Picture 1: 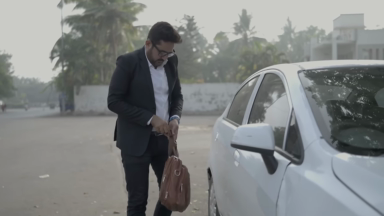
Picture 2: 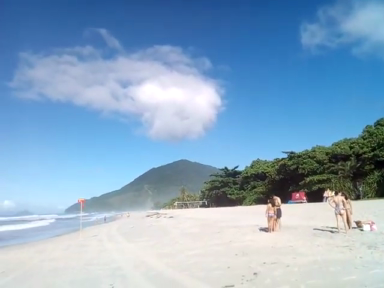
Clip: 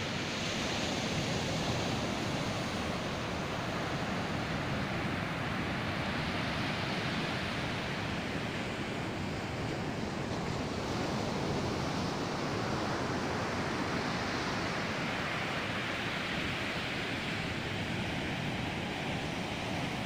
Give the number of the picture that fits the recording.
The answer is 2